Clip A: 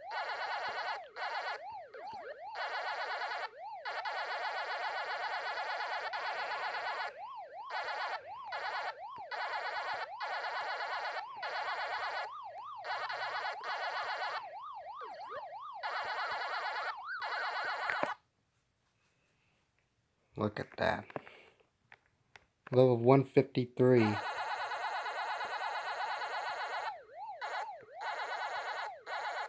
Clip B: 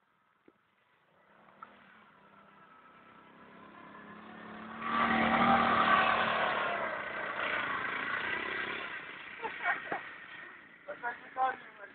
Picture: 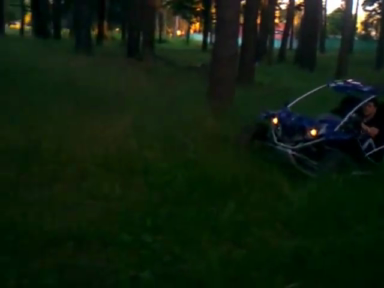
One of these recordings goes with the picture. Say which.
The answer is B